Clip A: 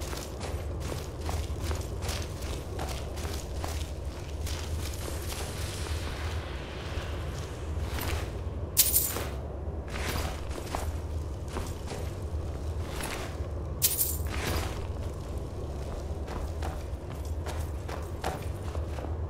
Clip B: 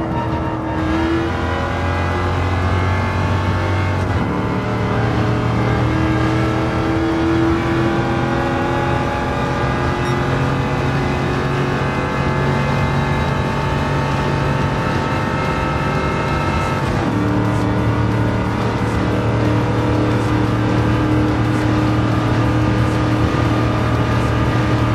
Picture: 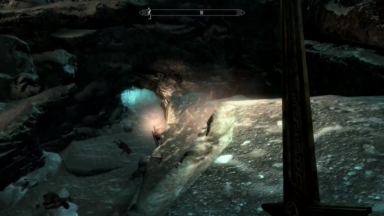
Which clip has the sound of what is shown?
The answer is A